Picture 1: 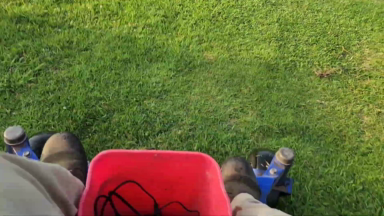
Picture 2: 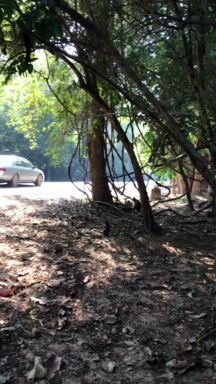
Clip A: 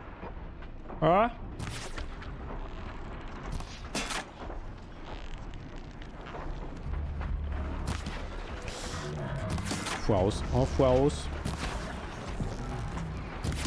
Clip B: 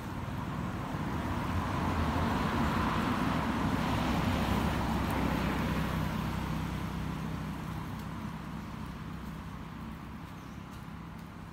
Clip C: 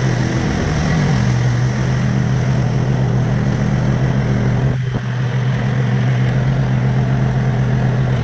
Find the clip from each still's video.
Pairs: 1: C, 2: B